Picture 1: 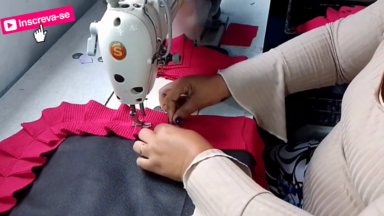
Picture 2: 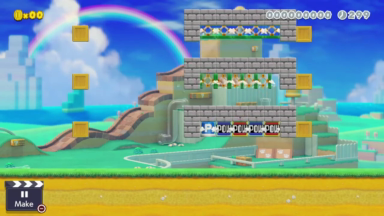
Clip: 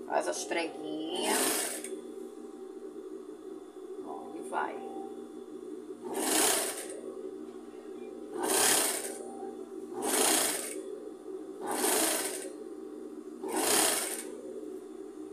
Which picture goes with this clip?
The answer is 1